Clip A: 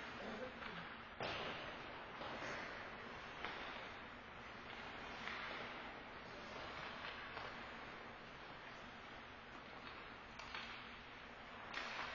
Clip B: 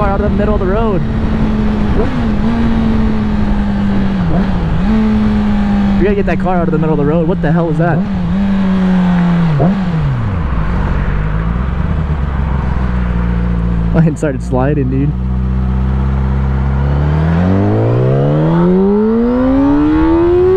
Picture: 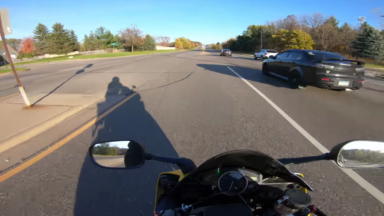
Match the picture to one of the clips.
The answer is B